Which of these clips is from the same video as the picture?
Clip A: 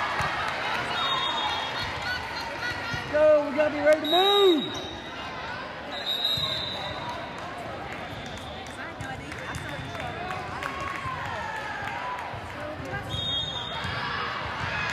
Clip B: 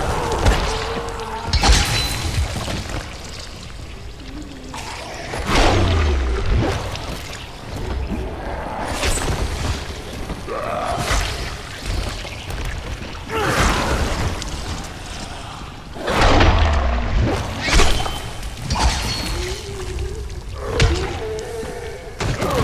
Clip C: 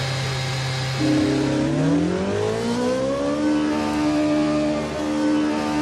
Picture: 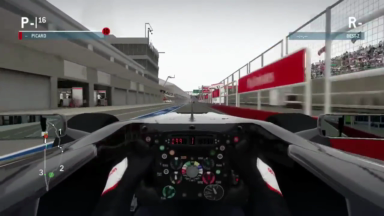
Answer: C